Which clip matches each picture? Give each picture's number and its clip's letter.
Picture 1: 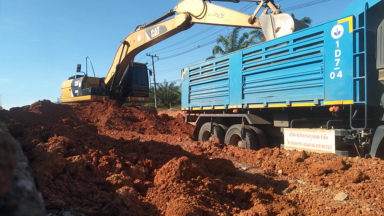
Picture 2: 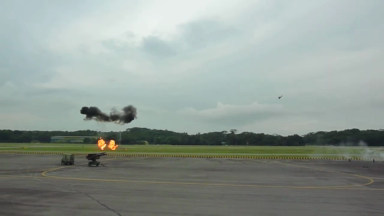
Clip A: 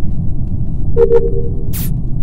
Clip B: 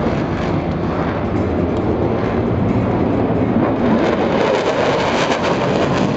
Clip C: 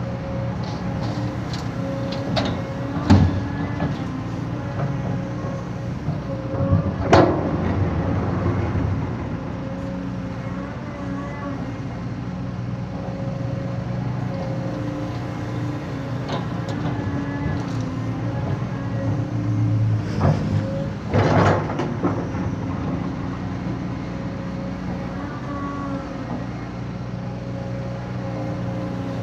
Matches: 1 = C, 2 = B